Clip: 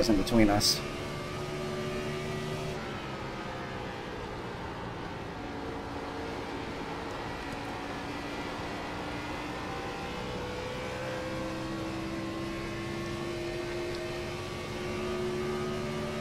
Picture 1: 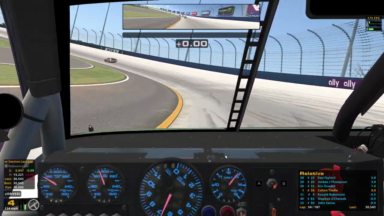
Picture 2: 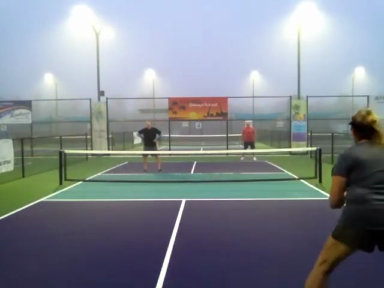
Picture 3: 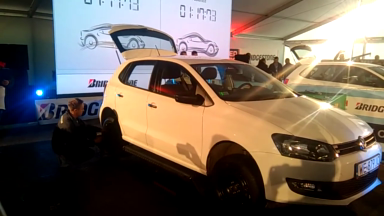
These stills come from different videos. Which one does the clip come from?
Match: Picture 1